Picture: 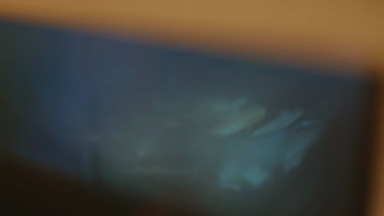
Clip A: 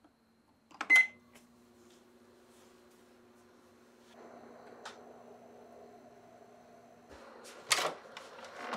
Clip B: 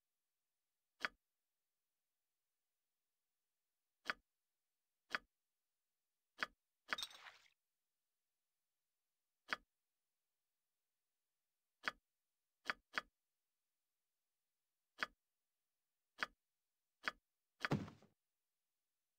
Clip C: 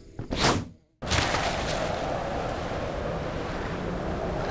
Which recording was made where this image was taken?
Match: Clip A